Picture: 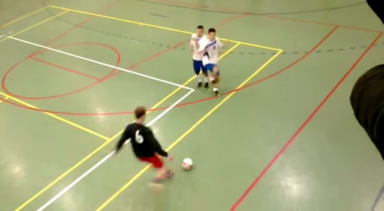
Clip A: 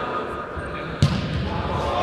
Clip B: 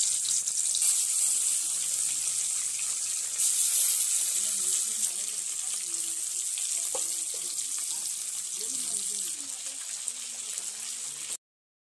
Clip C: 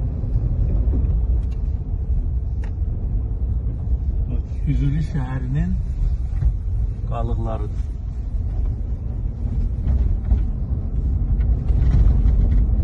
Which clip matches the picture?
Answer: A